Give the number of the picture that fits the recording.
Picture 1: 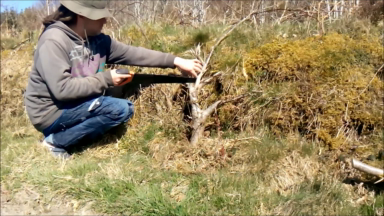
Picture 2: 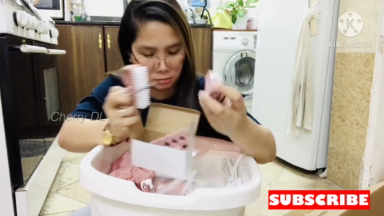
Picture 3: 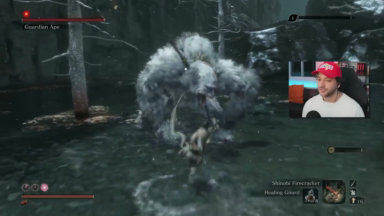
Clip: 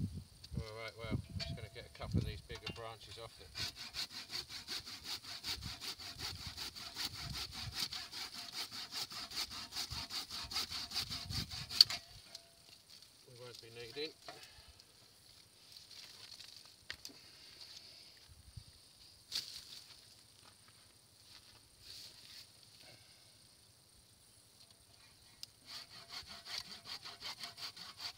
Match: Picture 1